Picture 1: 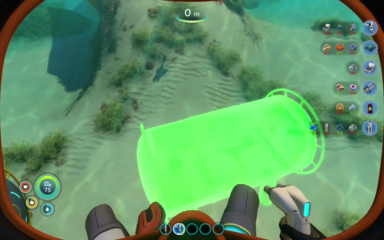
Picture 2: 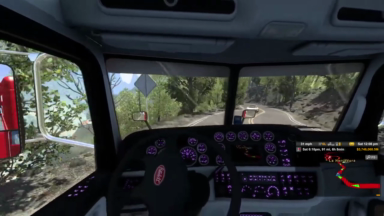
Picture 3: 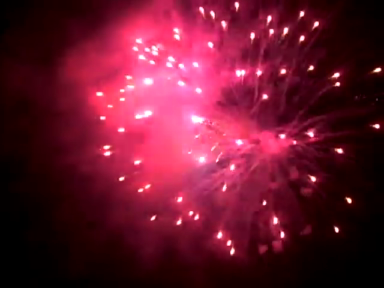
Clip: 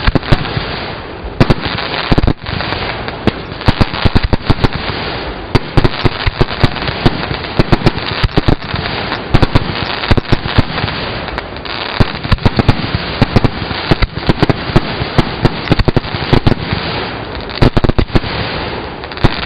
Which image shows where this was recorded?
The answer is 3